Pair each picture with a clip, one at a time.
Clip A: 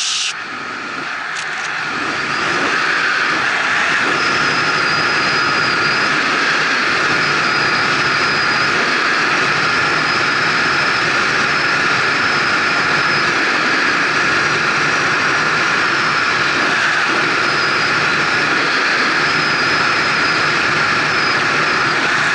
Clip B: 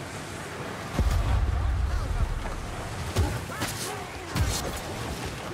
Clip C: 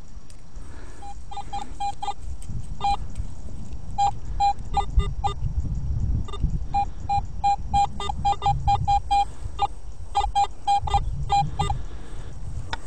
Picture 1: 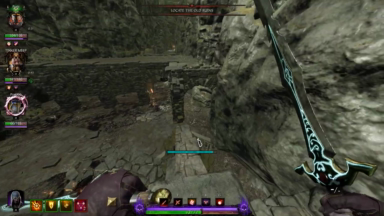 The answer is B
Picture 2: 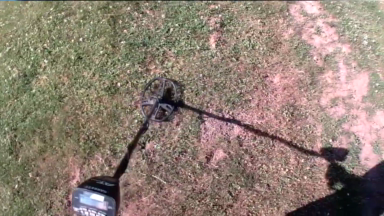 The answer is C